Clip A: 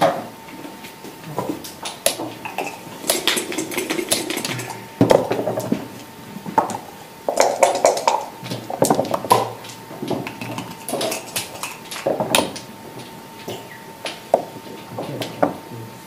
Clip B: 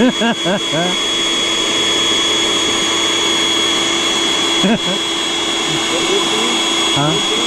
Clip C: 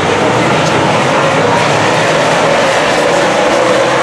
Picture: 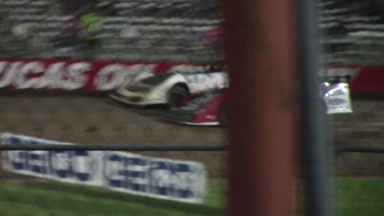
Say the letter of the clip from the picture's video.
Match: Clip C